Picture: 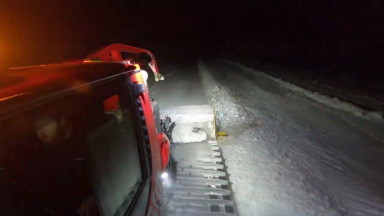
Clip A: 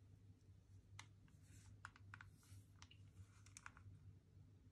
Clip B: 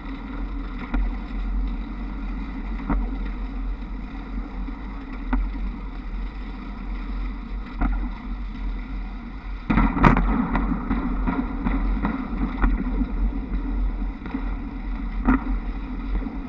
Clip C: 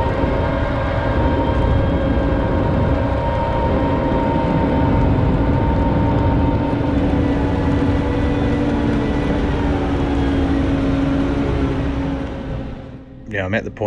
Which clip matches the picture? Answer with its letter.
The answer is C